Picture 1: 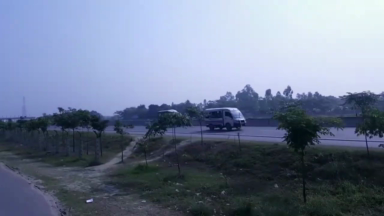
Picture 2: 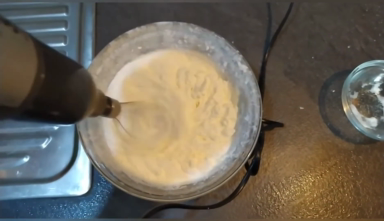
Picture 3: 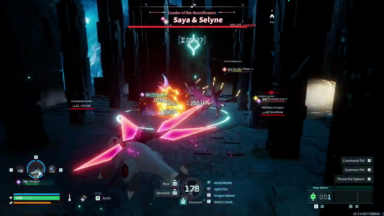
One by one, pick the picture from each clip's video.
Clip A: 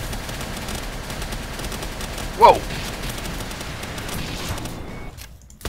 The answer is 3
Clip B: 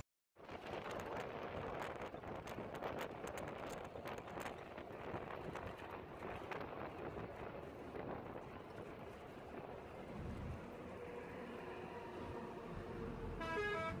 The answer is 1